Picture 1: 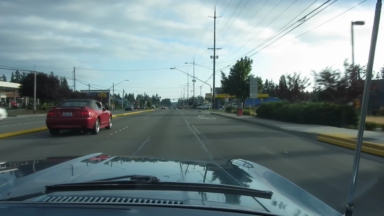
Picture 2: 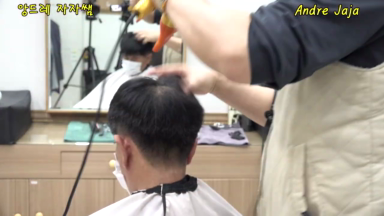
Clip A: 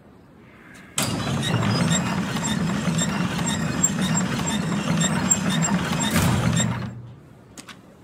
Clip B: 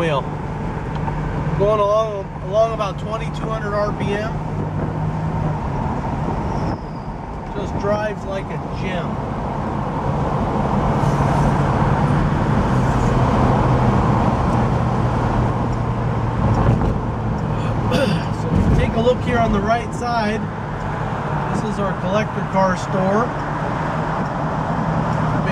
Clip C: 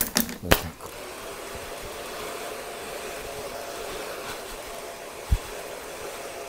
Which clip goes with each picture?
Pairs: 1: B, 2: C